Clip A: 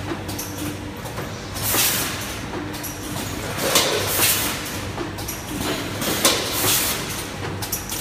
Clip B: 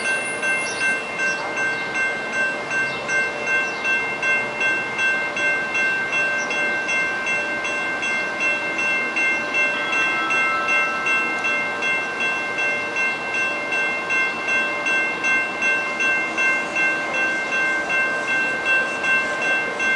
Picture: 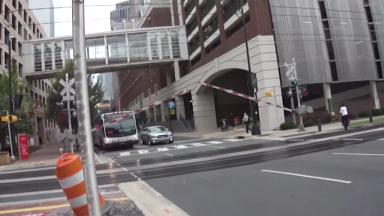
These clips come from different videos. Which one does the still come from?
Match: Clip B